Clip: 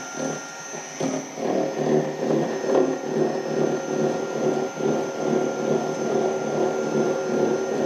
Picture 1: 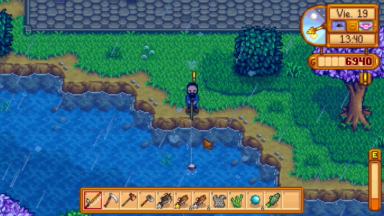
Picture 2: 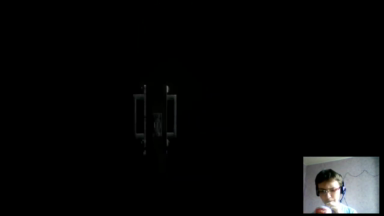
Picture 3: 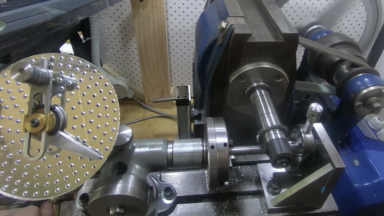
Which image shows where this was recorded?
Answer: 3